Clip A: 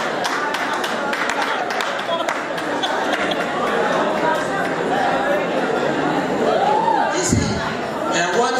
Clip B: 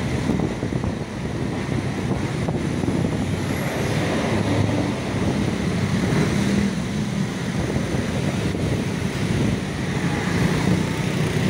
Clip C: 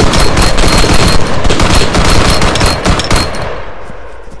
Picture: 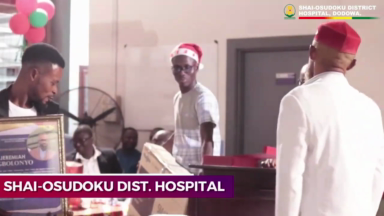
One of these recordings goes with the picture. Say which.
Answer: A